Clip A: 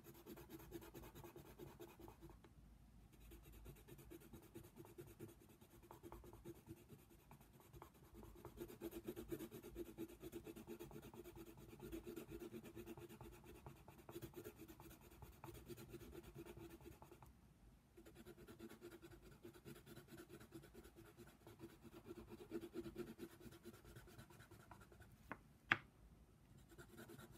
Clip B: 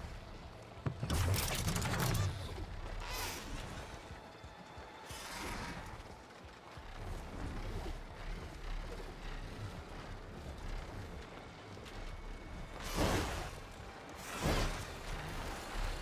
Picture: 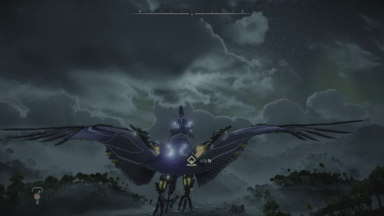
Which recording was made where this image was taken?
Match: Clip B